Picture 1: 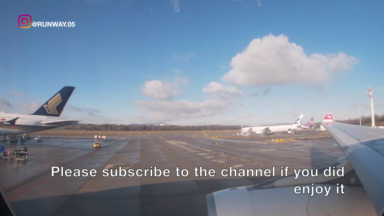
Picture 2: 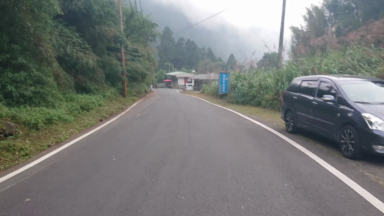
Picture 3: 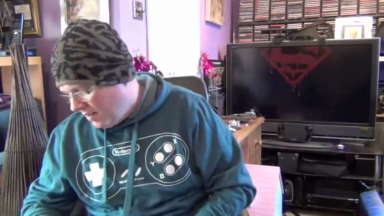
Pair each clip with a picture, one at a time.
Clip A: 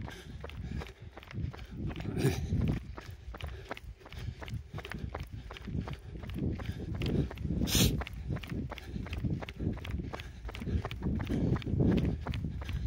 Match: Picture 2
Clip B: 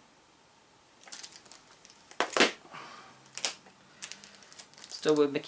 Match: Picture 3